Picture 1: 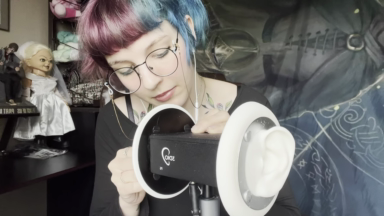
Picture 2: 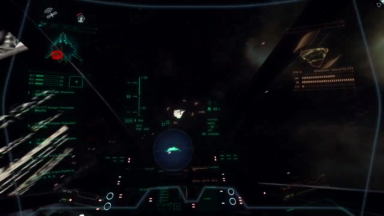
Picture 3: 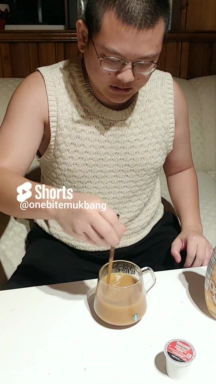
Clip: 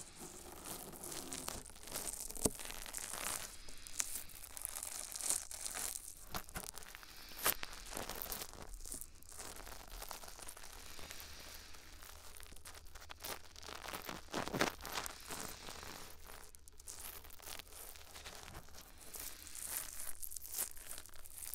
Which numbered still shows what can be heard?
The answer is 1